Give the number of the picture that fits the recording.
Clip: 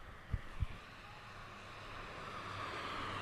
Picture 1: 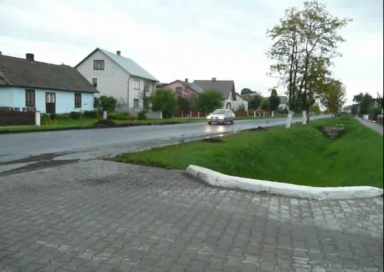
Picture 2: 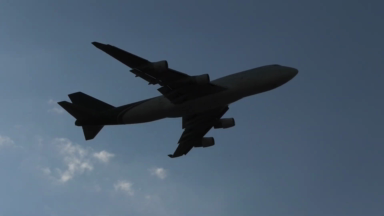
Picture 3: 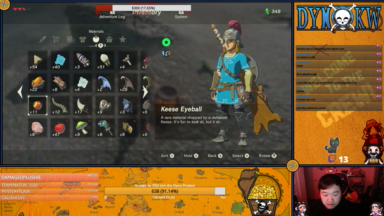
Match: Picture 1